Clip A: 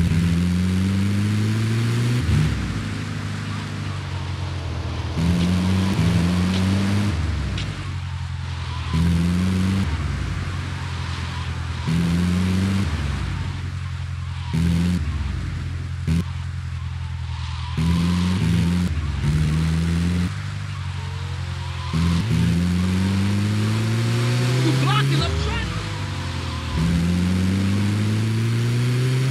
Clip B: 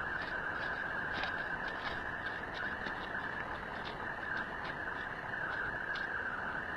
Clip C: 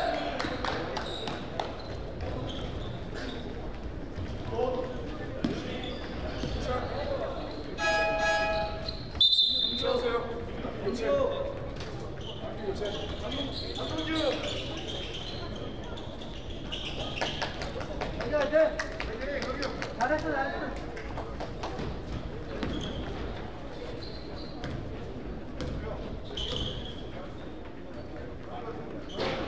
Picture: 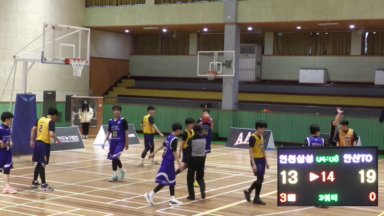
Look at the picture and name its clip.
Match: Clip C